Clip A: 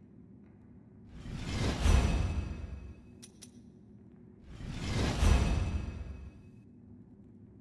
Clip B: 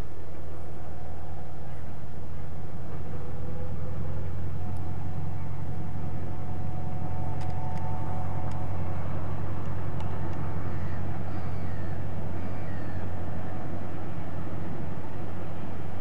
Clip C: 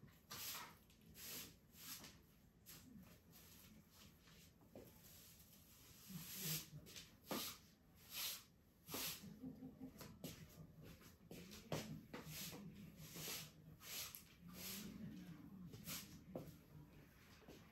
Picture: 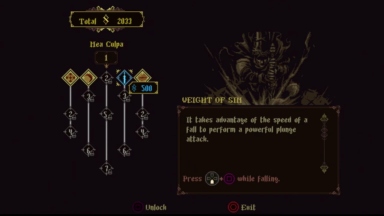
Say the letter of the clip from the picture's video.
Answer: A